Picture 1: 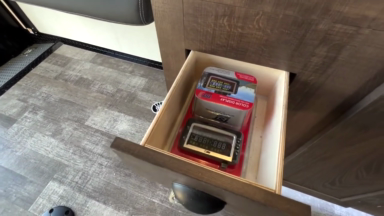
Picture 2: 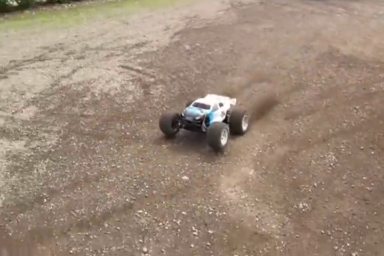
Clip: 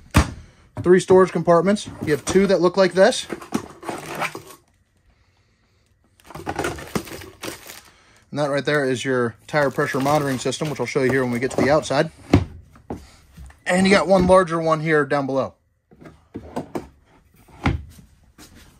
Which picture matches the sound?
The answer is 1